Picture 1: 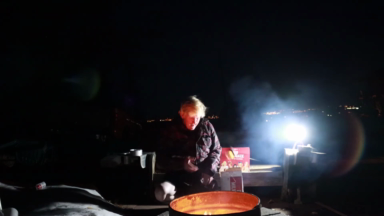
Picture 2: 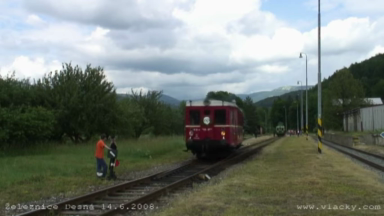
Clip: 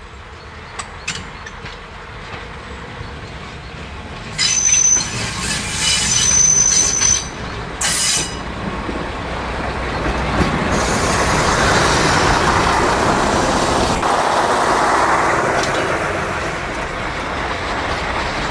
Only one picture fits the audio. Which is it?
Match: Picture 2